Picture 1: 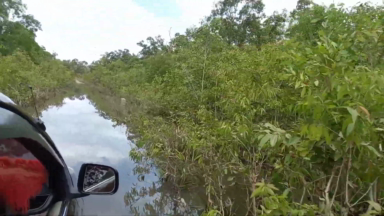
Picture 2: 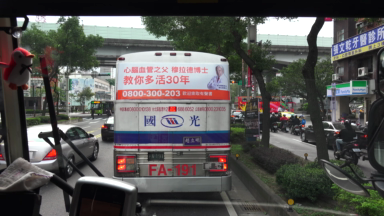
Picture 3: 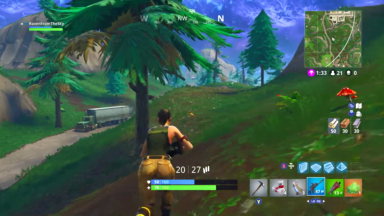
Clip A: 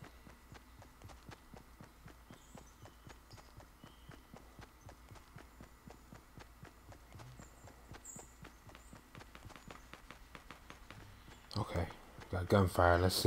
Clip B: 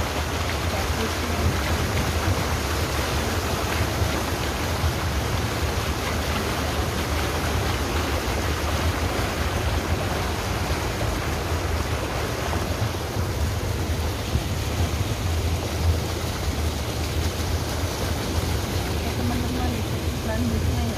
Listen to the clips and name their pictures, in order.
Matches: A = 3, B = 1